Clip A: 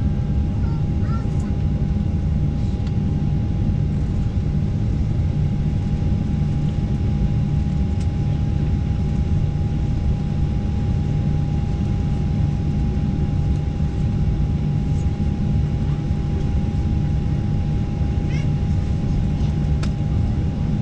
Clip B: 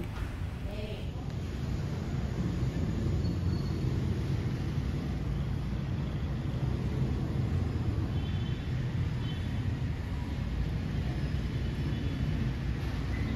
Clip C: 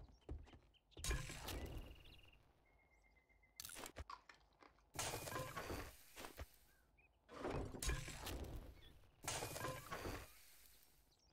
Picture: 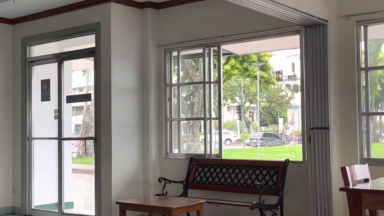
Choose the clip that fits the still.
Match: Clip B